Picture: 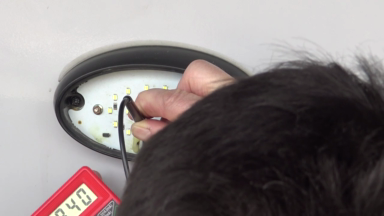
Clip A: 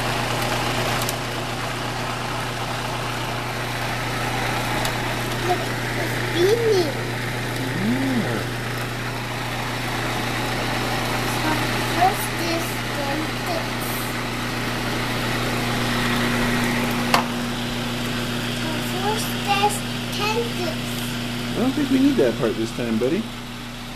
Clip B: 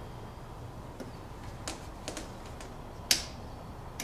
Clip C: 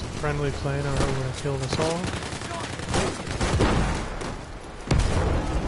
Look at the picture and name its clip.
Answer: B